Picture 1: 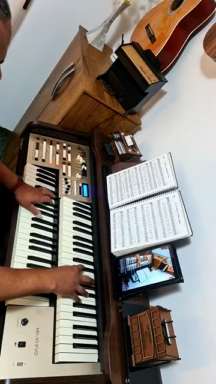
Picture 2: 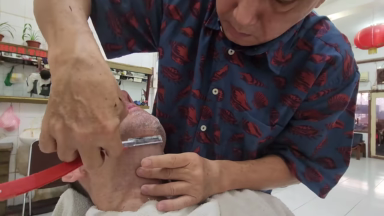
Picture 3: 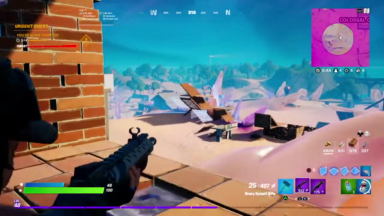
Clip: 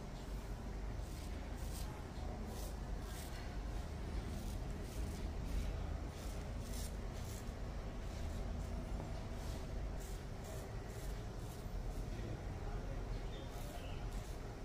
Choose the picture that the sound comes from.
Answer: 2